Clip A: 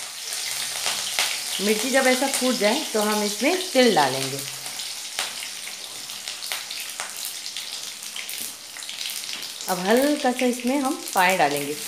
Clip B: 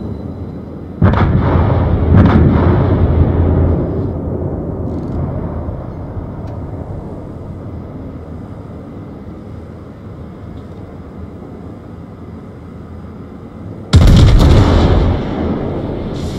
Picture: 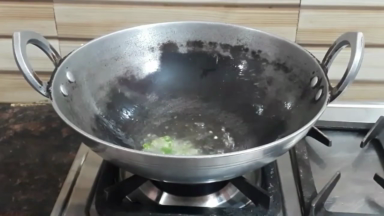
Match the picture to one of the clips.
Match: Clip A